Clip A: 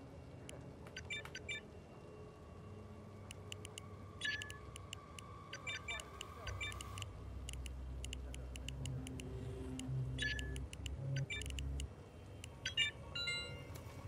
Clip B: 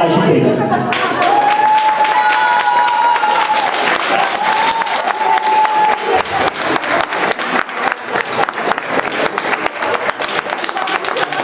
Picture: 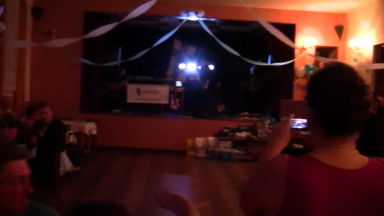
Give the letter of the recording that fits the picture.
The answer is B